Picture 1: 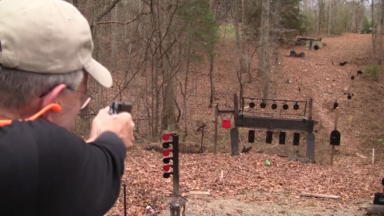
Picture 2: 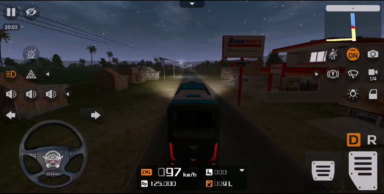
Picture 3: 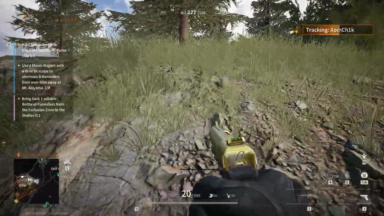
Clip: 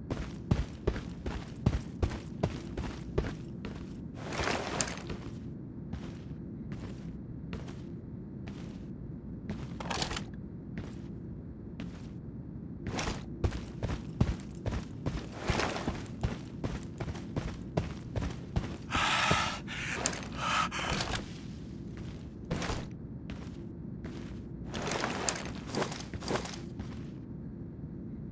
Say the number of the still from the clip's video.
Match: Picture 3